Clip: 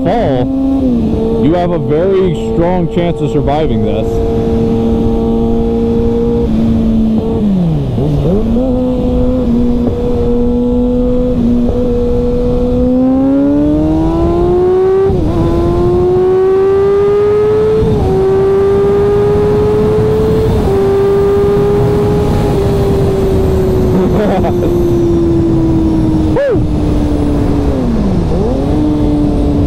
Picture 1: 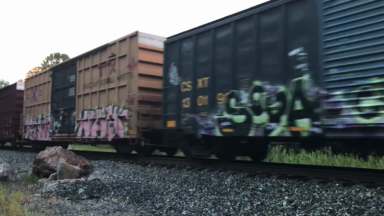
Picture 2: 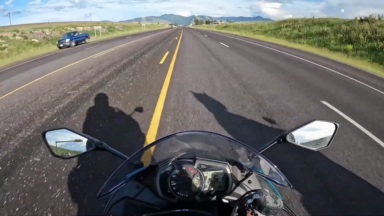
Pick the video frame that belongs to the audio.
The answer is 2